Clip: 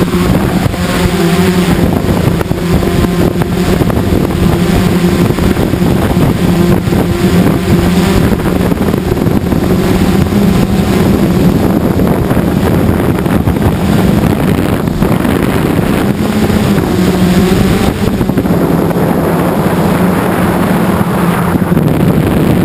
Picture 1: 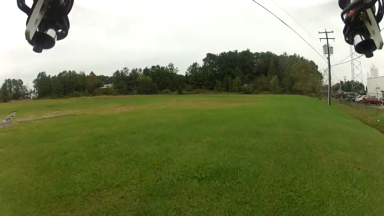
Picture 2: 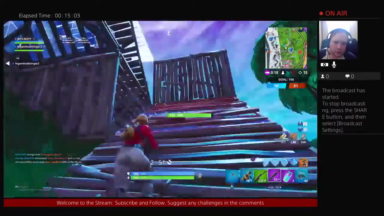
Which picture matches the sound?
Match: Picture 1